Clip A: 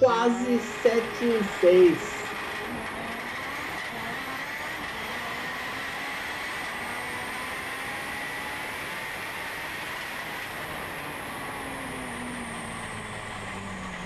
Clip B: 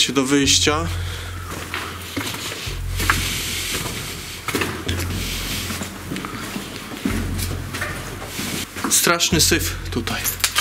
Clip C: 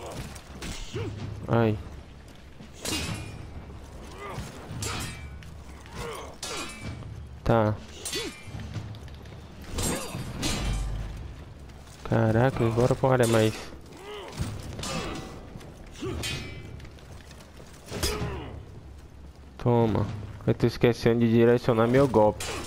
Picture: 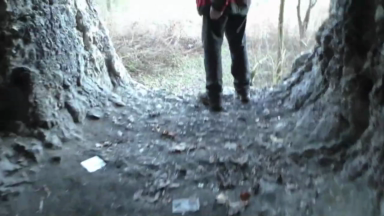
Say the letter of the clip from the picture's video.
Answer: B